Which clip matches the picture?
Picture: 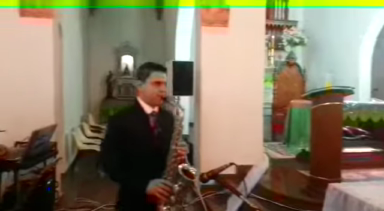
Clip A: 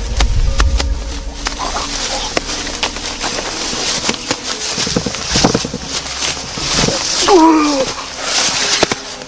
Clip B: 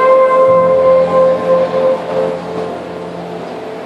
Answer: B